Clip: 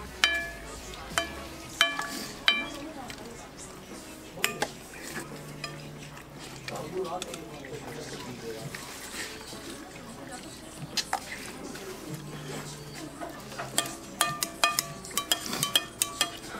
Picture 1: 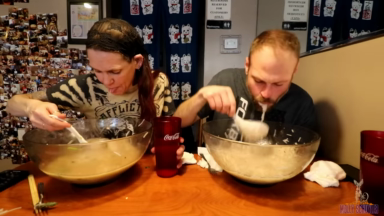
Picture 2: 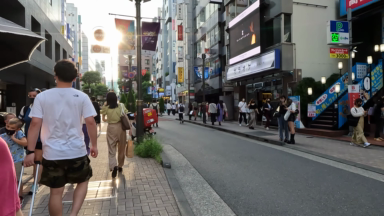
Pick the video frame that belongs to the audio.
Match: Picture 1